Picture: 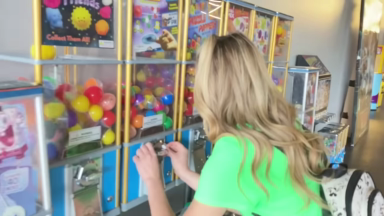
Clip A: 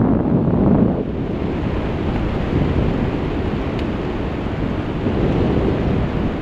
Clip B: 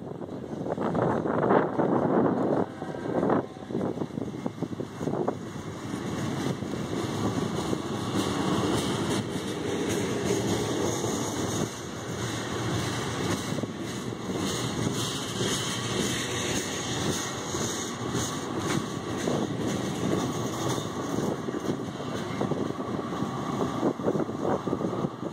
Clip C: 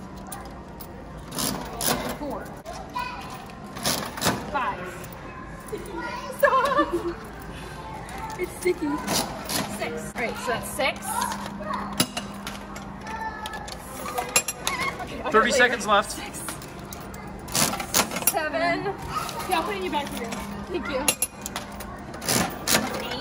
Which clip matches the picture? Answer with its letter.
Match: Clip C